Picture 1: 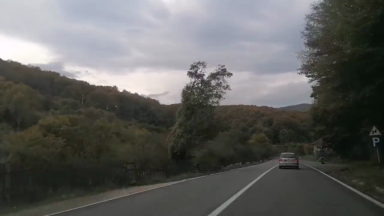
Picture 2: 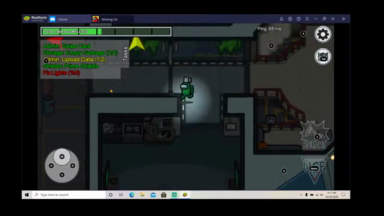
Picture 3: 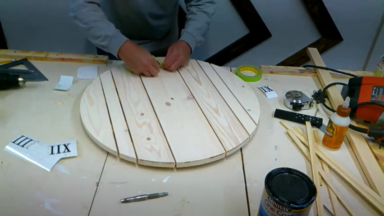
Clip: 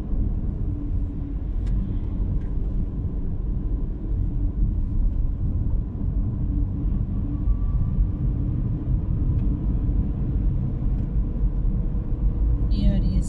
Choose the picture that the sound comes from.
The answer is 1